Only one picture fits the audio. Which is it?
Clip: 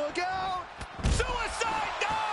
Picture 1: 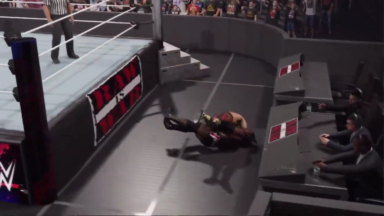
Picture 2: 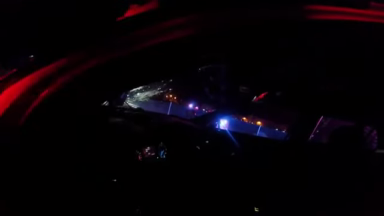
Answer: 1